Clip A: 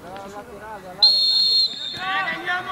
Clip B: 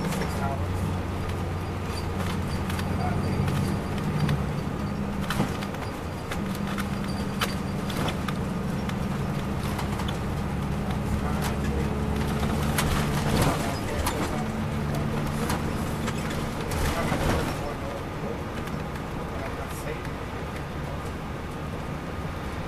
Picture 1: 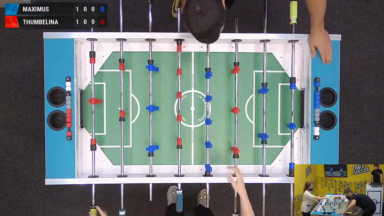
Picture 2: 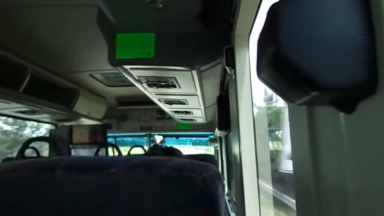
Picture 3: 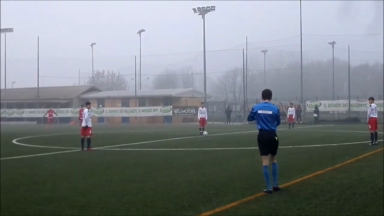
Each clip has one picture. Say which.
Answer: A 3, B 2